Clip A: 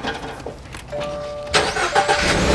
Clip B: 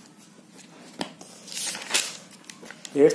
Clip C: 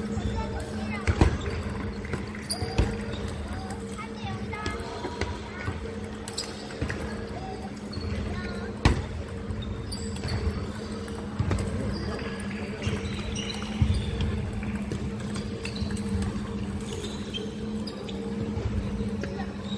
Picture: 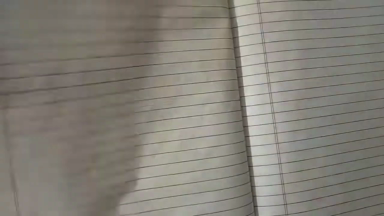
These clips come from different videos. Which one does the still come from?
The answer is B